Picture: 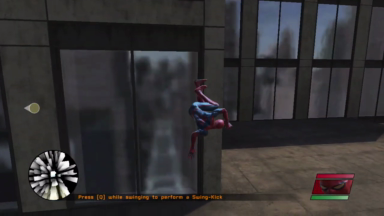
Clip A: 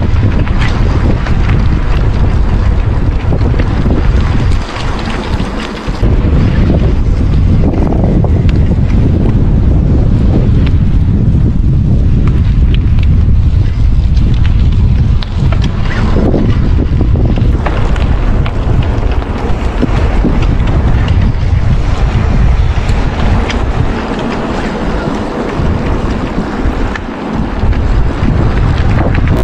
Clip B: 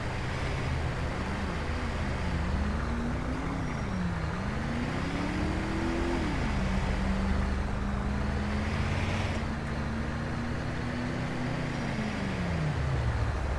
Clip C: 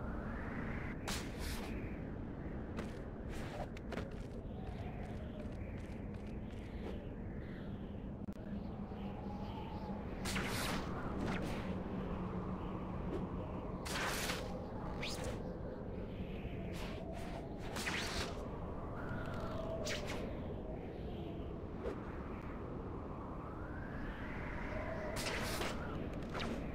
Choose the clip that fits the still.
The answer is C